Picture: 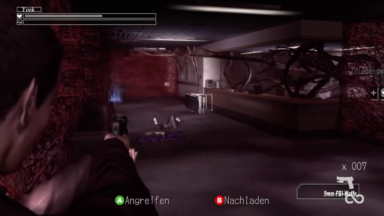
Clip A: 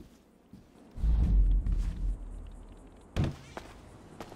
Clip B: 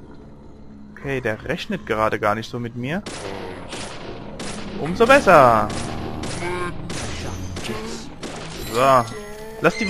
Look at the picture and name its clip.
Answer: B